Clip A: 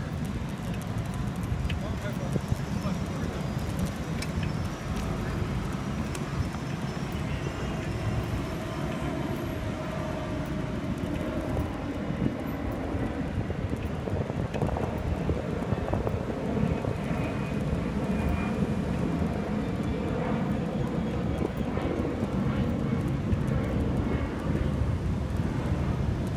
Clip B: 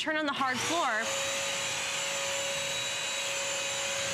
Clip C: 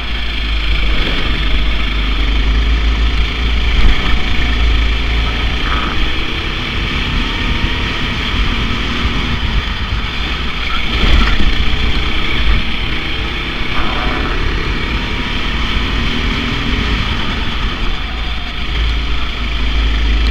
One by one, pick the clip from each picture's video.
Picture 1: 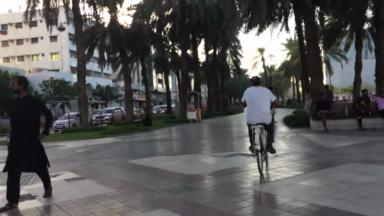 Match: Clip A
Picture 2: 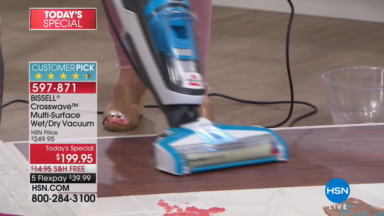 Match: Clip B